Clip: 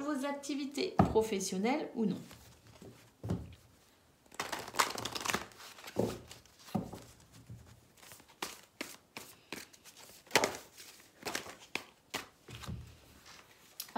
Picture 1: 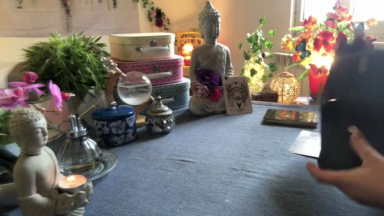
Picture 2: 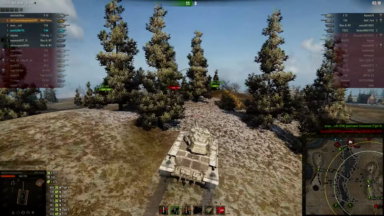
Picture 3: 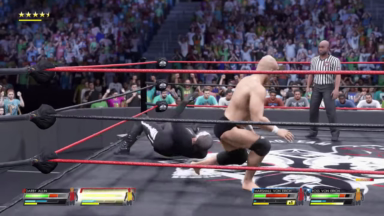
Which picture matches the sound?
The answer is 1